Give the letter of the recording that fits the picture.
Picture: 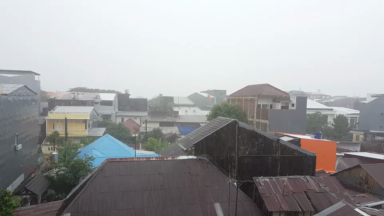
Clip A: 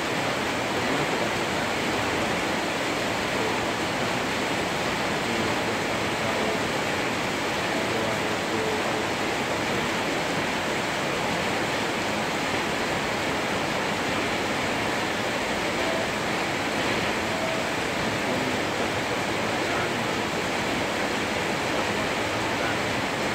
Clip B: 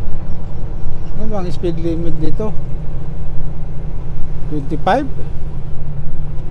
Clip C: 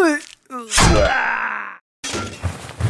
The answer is A